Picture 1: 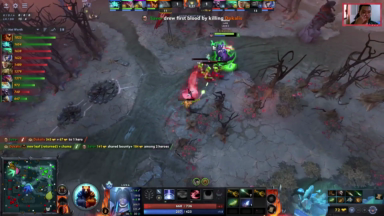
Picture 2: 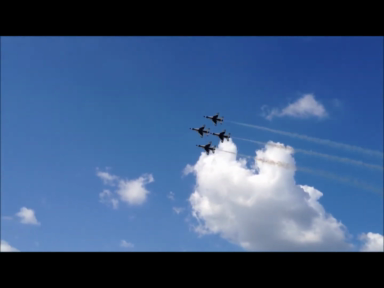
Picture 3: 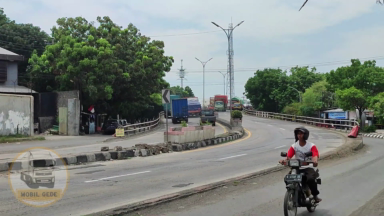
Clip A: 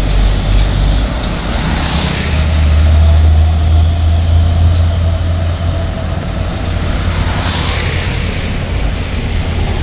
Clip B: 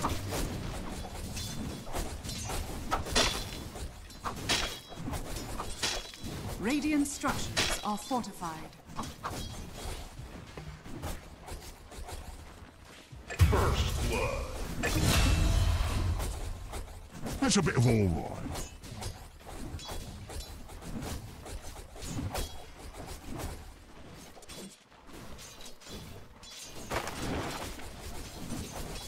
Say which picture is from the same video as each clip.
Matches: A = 3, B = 1